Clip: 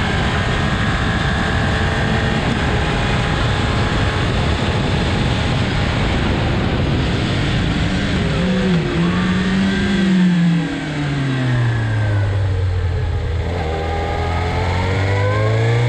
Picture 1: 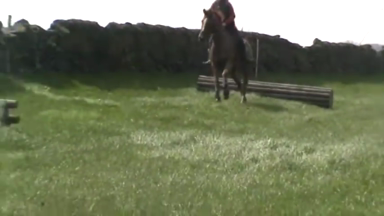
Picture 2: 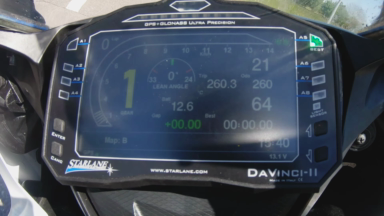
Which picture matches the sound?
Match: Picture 2